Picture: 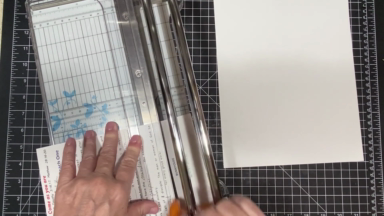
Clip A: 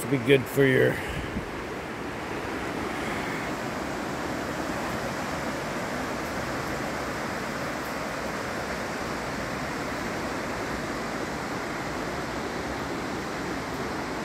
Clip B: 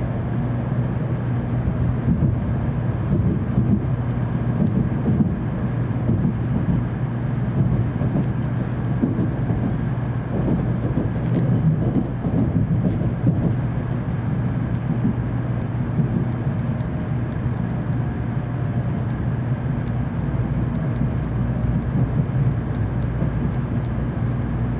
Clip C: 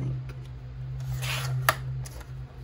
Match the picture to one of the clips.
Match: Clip C